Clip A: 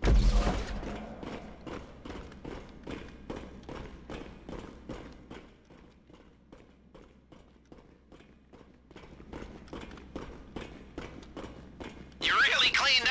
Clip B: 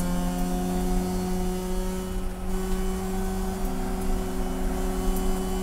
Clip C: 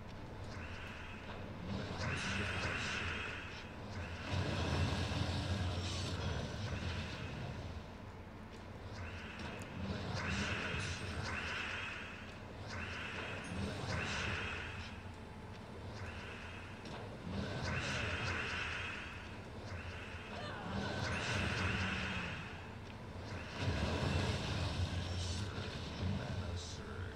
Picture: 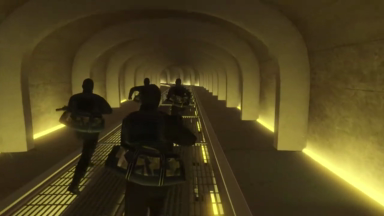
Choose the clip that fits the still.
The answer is A